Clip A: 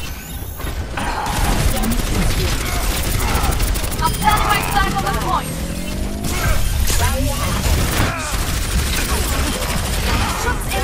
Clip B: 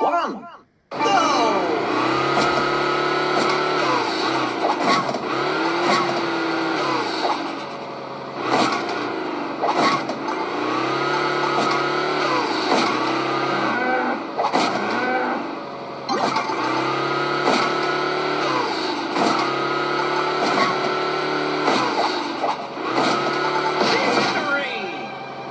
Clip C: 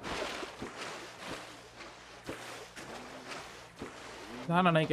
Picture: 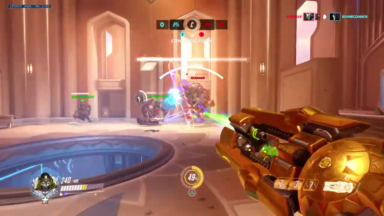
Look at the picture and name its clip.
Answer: A